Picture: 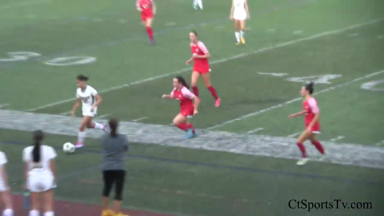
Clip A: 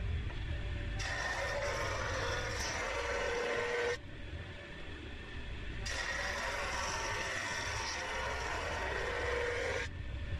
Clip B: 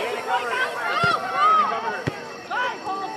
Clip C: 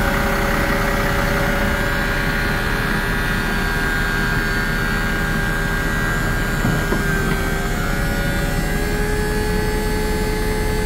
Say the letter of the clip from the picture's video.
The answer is B